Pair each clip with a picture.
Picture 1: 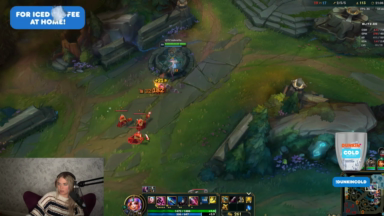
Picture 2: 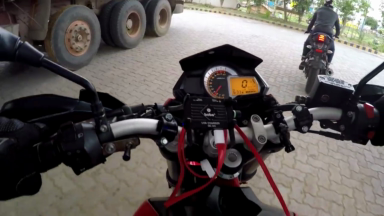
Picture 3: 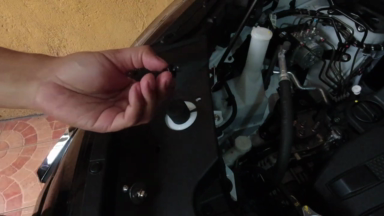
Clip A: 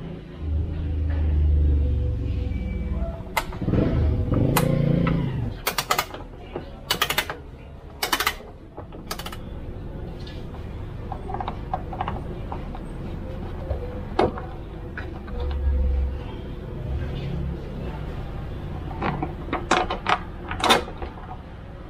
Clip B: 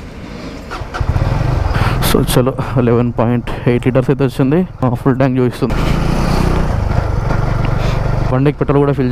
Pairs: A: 3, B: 2